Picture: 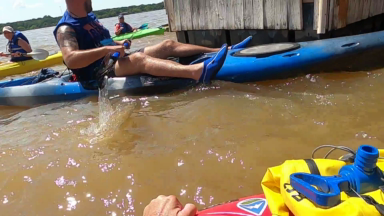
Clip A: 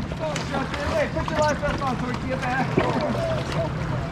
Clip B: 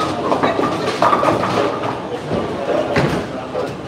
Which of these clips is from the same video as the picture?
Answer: A